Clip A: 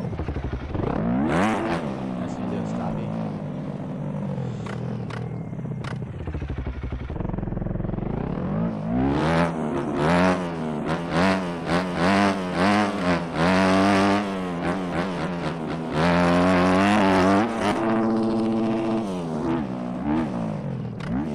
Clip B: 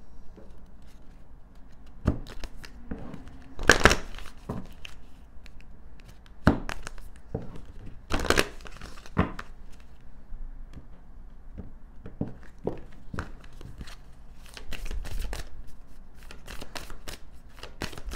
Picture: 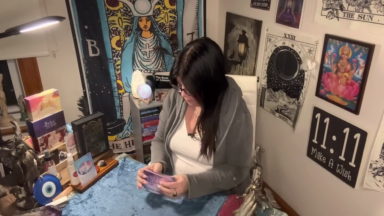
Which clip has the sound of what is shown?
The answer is B